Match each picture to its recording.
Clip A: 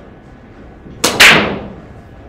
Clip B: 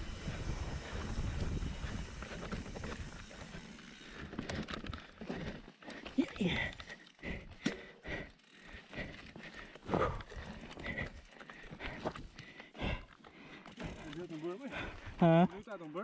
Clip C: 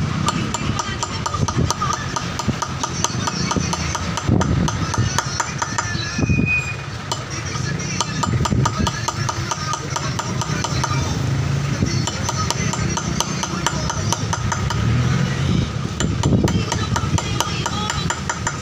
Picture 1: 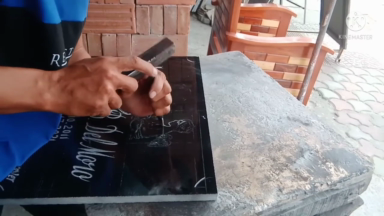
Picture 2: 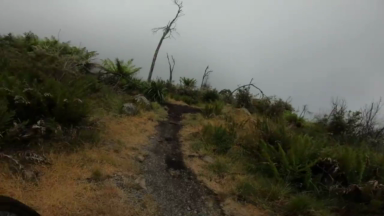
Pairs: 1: C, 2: B